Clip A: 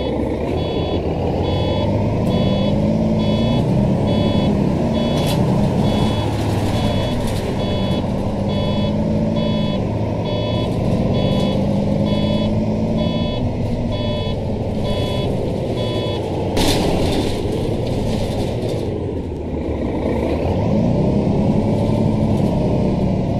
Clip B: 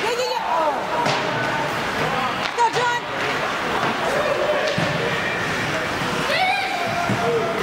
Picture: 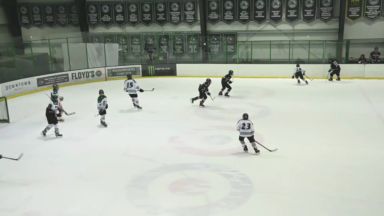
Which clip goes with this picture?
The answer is B